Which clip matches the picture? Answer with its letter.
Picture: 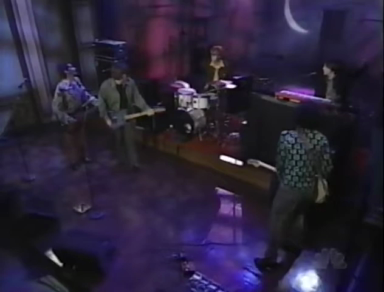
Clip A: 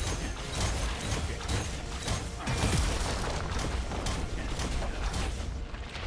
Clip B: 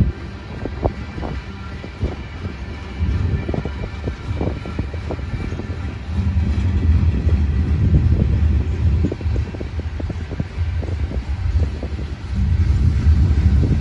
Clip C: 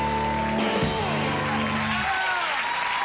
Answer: C